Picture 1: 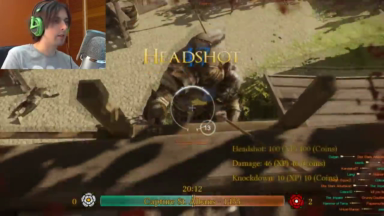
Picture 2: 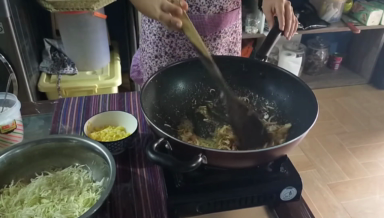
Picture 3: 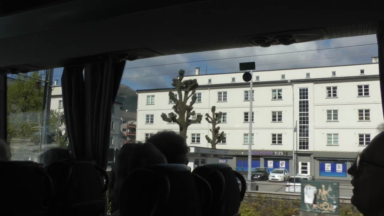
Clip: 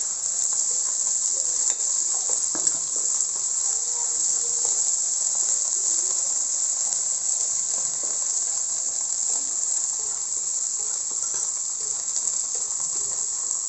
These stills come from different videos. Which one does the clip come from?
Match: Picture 2